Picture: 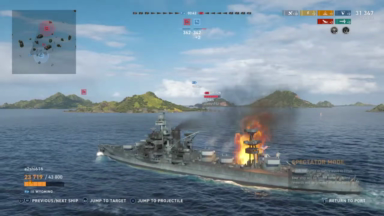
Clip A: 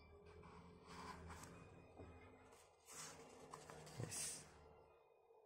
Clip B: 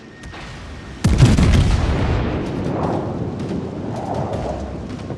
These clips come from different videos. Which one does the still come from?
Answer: B